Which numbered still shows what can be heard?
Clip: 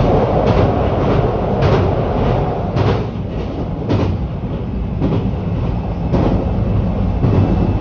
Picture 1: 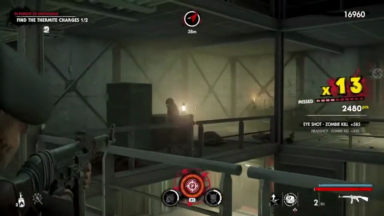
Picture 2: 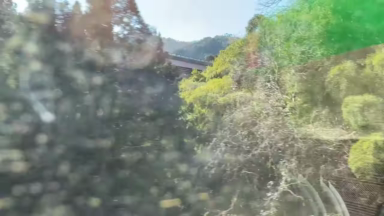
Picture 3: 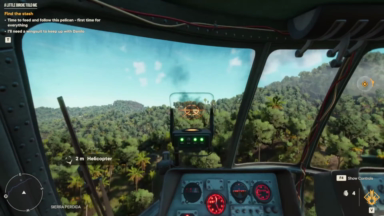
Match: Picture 2